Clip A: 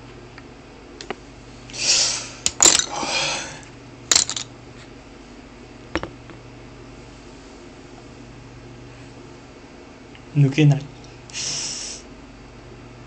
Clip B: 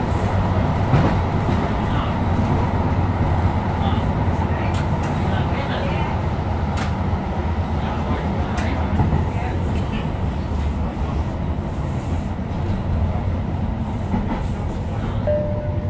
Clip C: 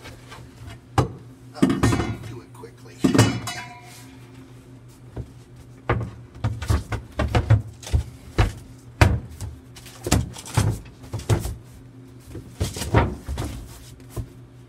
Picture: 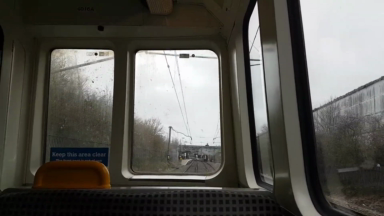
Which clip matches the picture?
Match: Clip B